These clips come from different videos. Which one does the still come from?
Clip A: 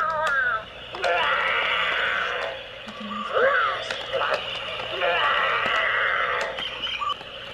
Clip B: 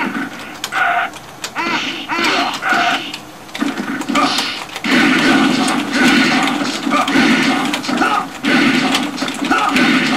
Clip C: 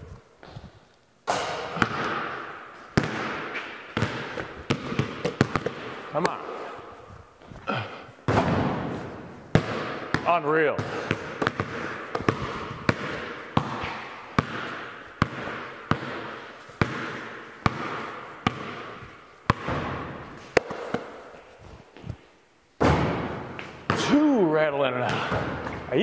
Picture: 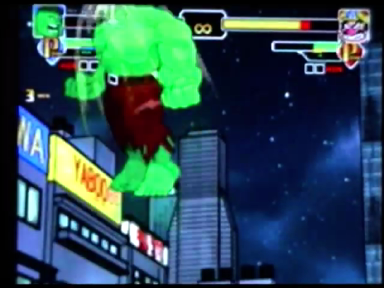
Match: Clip B